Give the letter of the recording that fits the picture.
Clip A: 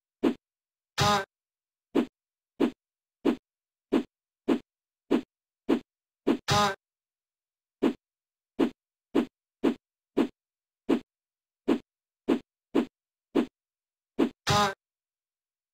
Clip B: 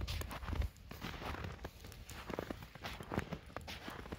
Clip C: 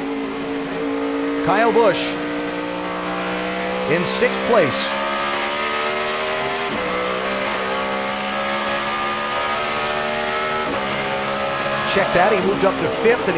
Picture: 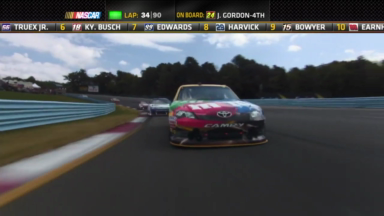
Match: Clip C